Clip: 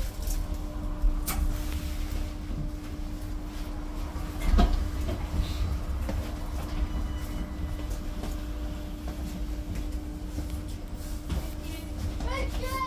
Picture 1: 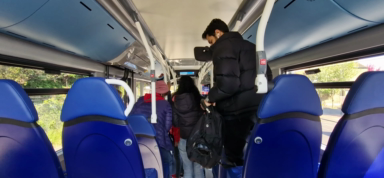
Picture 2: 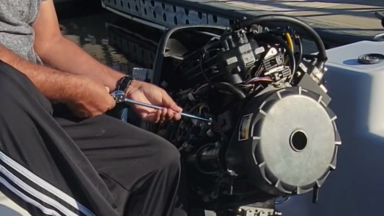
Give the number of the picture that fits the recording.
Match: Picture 1